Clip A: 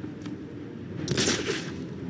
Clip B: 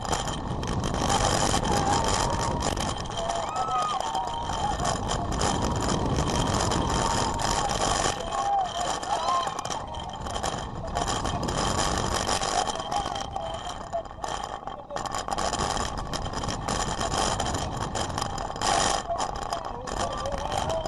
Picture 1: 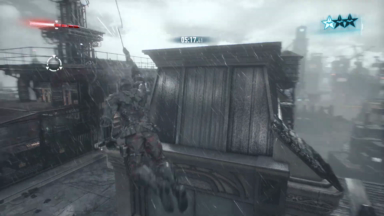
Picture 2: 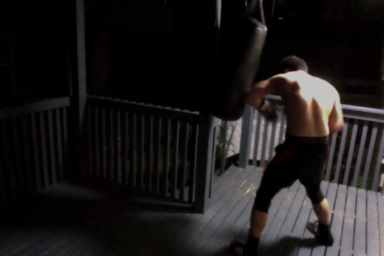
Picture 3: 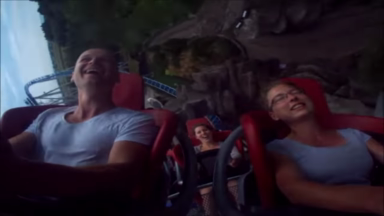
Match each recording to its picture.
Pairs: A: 1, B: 3